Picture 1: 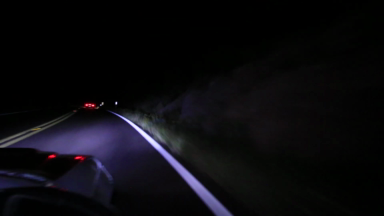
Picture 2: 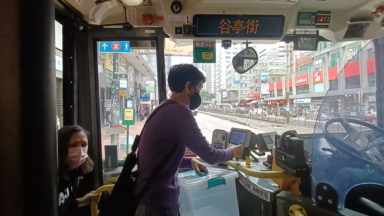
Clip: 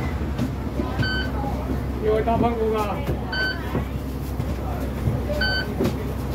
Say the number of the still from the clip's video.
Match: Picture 2